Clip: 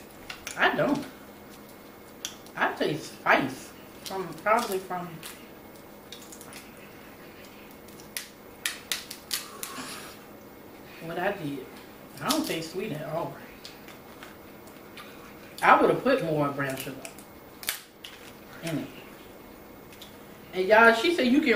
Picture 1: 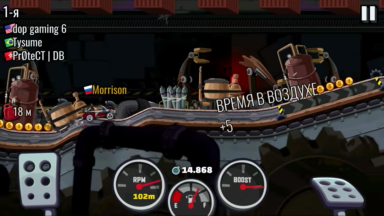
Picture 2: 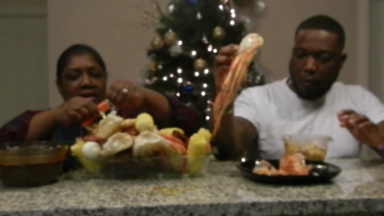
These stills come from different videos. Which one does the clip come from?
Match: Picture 2